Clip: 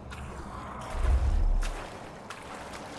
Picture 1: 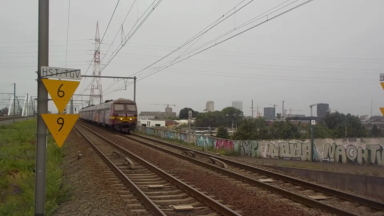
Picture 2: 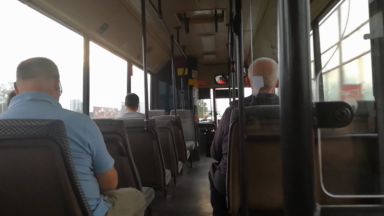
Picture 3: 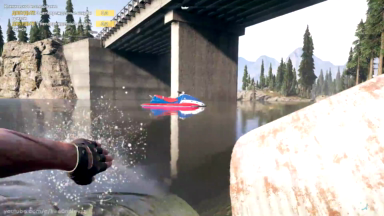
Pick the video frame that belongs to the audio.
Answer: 3